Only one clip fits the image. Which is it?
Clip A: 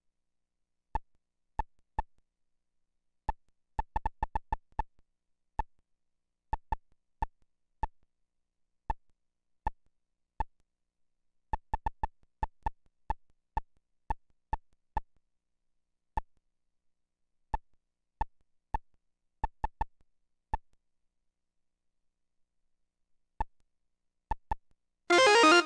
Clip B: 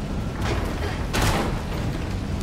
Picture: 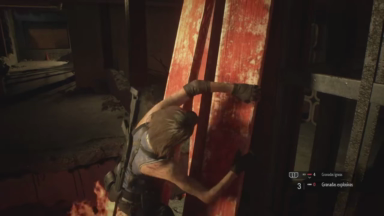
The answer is B